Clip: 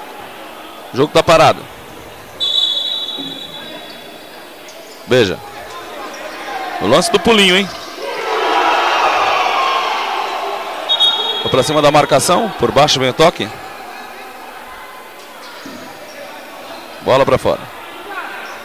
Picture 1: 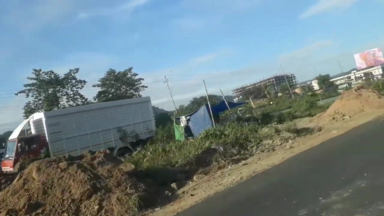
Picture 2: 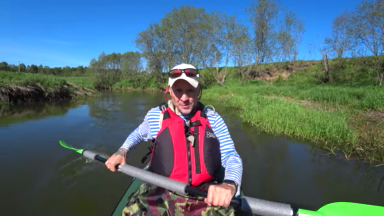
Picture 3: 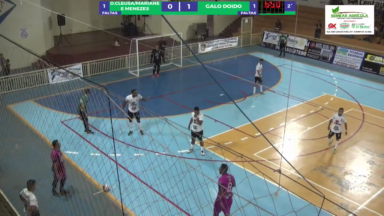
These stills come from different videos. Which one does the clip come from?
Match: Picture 3